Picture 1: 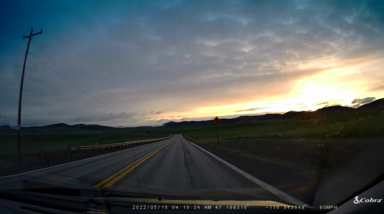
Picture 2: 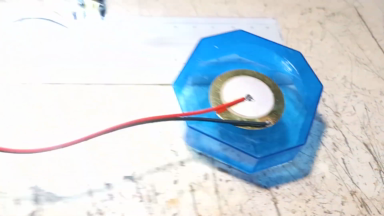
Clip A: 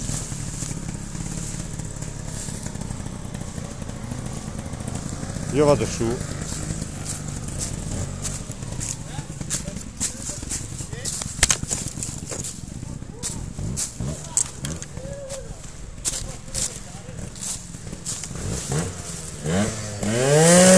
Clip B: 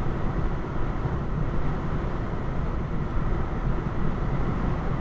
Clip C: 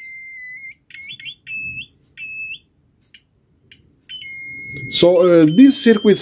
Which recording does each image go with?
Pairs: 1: B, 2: C